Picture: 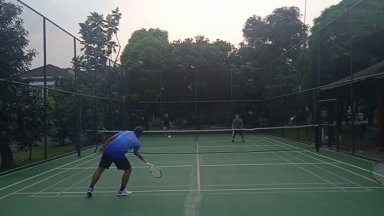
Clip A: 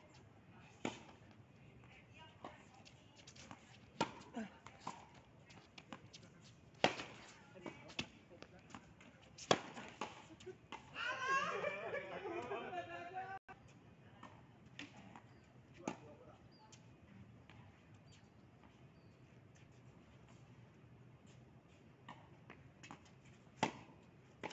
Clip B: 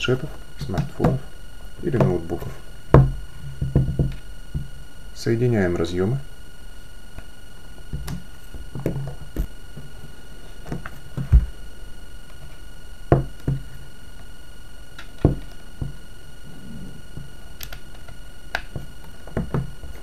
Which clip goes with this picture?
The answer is A